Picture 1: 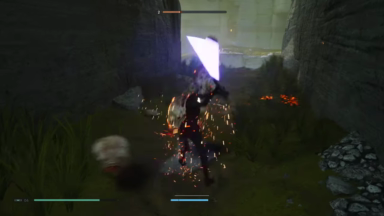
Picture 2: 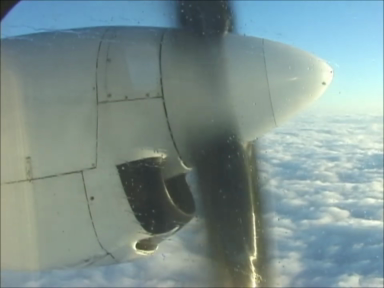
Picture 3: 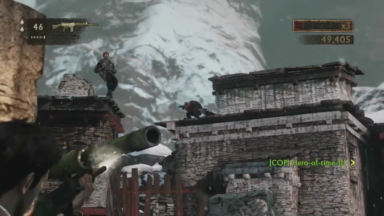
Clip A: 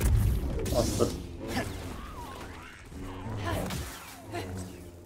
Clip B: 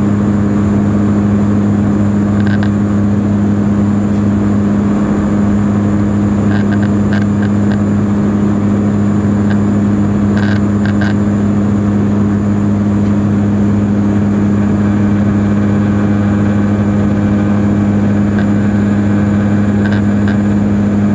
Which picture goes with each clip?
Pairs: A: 1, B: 2